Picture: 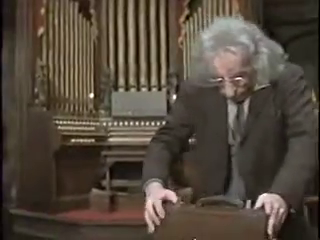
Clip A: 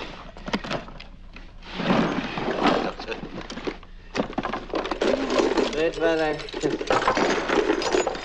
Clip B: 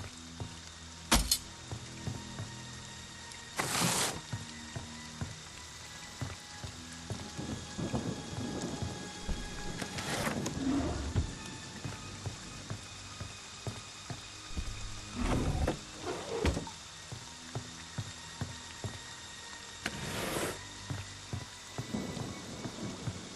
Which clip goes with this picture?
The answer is A